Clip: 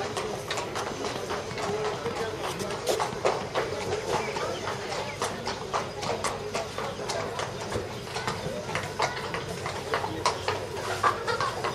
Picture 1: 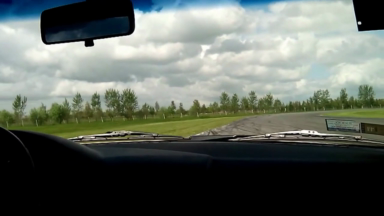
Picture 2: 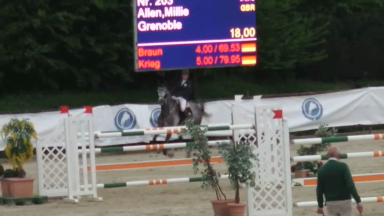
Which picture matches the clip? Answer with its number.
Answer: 2